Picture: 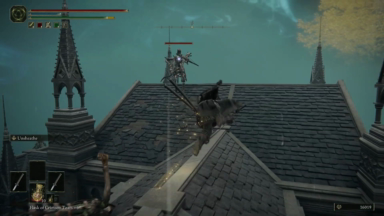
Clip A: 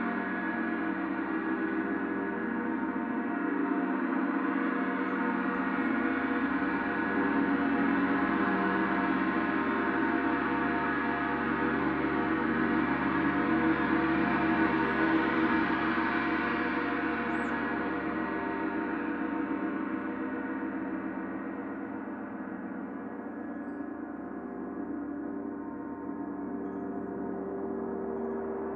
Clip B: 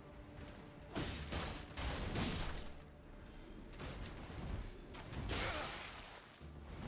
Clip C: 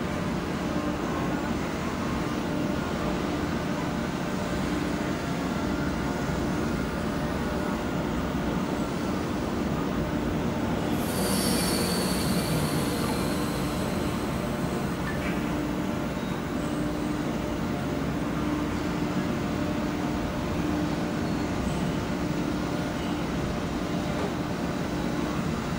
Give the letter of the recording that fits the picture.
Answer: B